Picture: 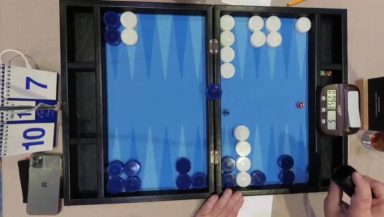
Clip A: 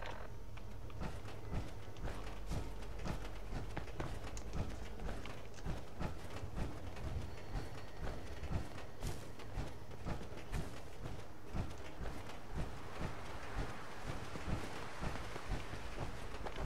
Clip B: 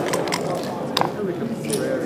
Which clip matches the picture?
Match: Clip B